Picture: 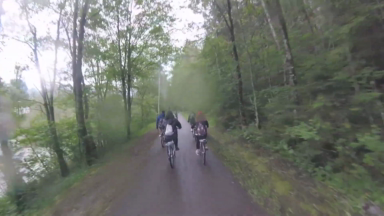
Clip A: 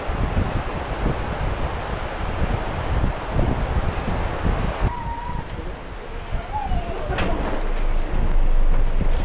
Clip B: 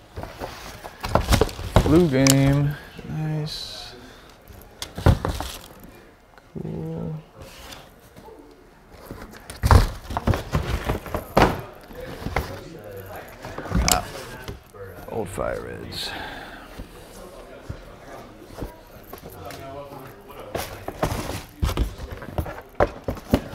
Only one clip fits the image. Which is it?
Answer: A